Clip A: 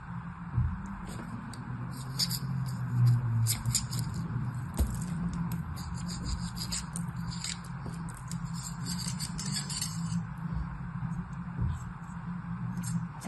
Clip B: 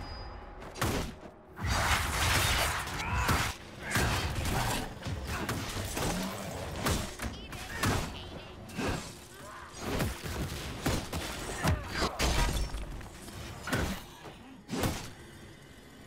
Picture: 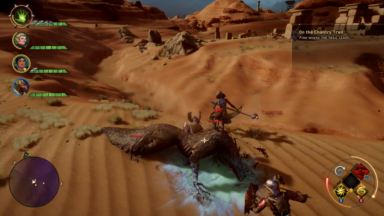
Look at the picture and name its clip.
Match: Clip B